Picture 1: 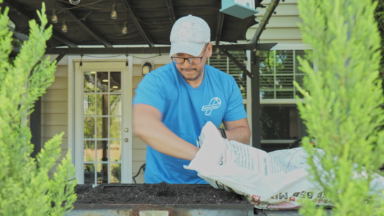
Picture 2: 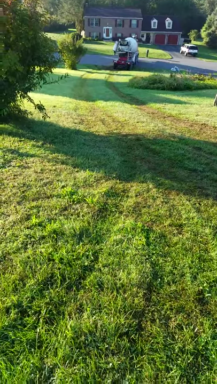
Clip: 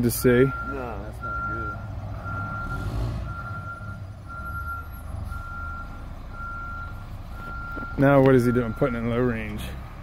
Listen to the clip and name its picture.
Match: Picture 2